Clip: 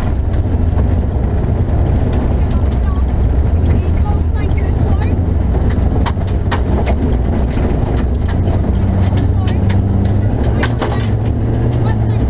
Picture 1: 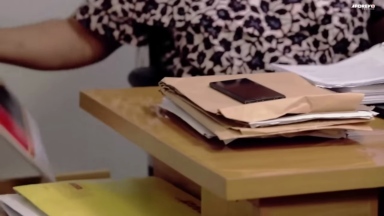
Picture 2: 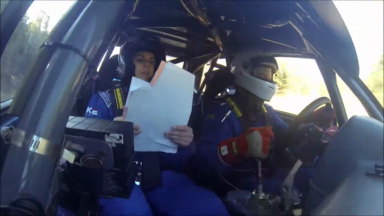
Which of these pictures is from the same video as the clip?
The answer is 2